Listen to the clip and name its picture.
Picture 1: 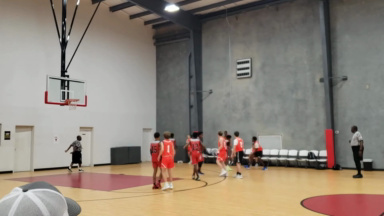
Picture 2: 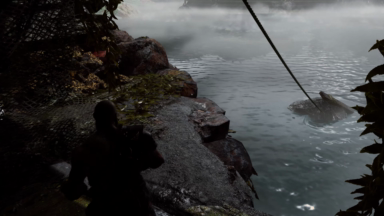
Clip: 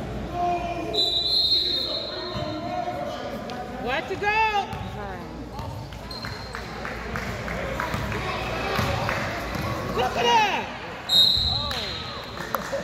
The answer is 1